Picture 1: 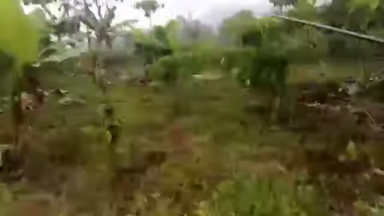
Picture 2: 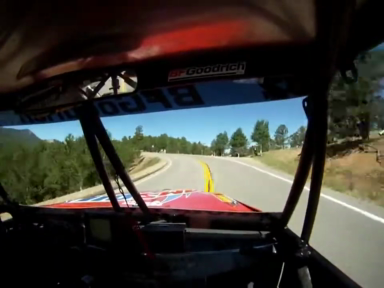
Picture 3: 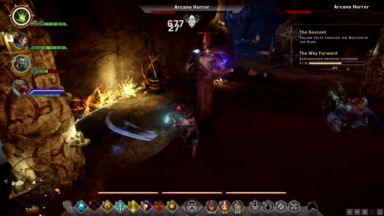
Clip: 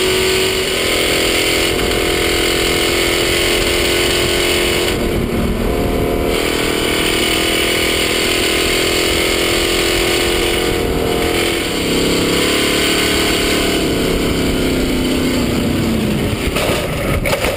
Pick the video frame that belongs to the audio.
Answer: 2